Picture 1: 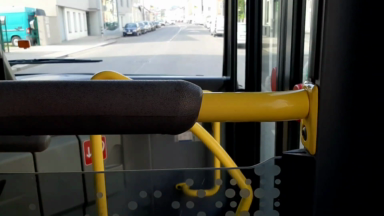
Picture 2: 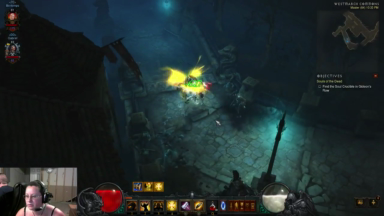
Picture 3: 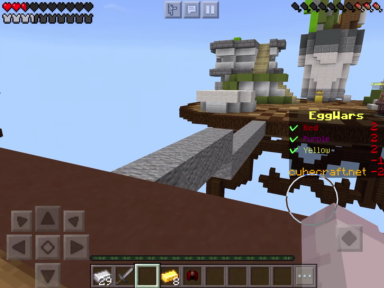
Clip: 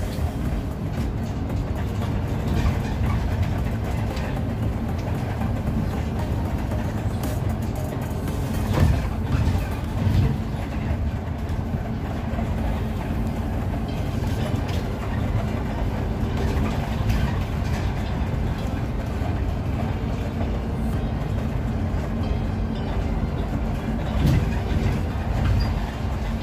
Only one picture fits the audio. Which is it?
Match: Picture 1